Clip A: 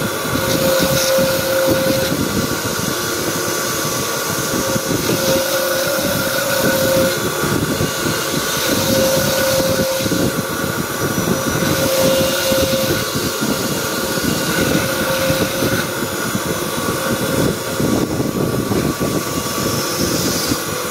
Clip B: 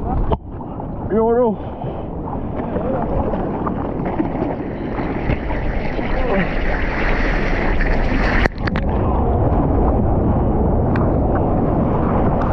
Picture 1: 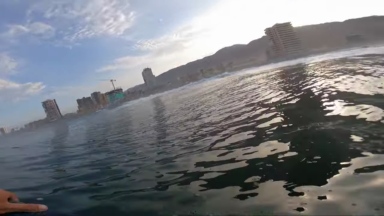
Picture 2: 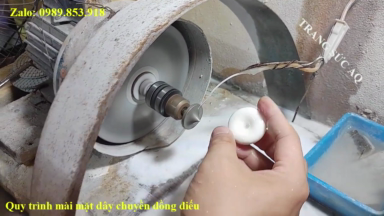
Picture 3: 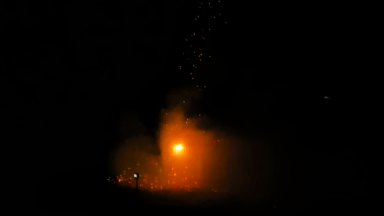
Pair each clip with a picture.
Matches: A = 2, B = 1